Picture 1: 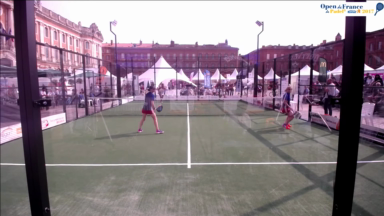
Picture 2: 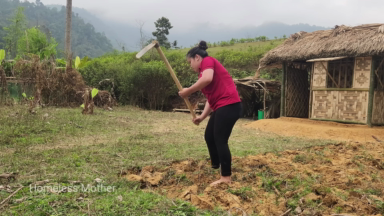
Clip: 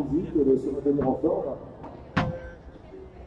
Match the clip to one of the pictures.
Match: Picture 1